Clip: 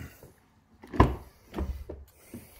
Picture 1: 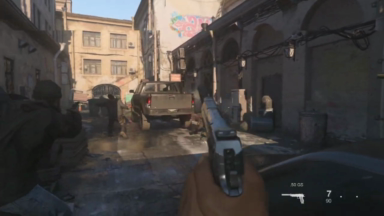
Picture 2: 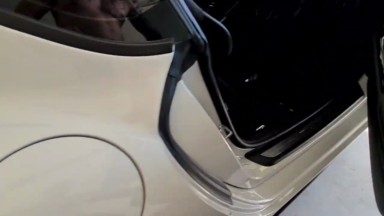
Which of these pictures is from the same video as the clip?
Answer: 2